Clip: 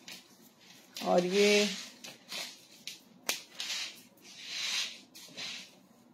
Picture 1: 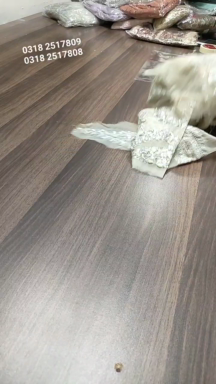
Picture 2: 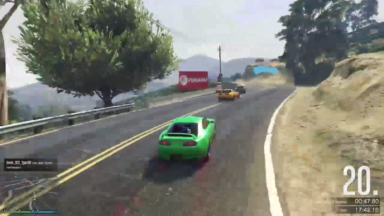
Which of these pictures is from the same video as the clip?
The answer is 1